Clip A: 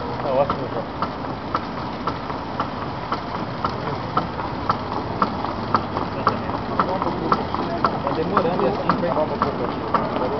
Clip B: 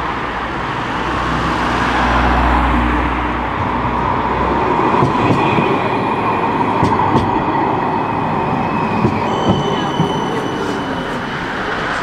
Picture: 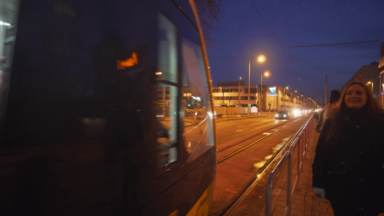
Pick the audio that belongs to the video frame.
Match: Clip B